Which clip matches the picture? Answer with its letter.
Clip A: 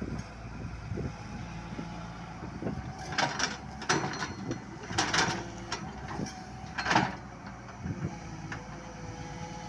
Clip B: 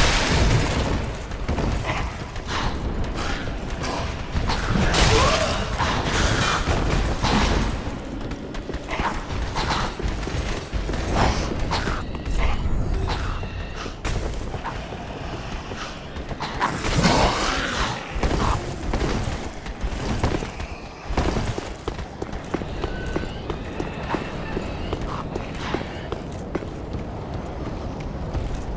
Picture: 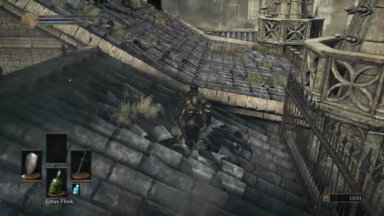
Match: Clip B